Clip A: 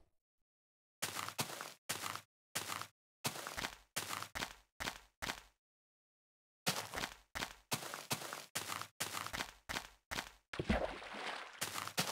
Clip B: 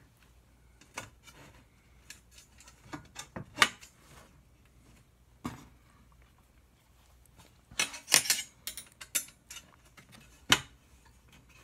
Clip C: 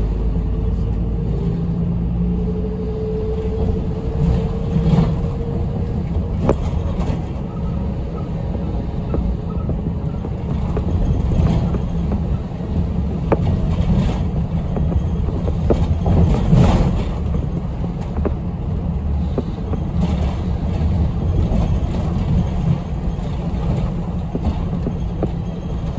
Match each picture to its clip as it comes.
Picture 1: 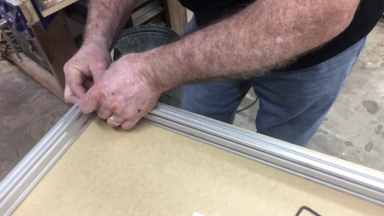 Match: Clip B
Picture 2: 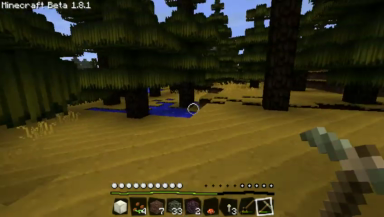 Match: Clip A